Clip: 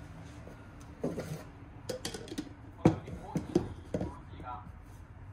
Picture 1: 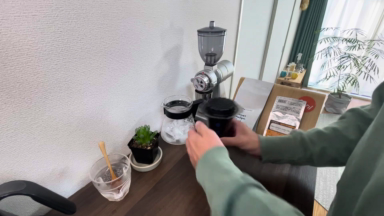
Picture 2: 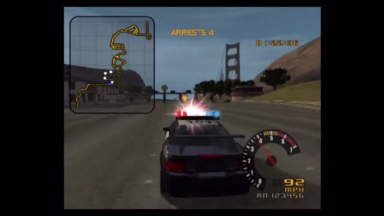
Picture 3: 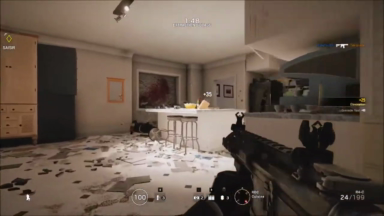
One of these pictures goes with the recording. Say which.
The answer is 1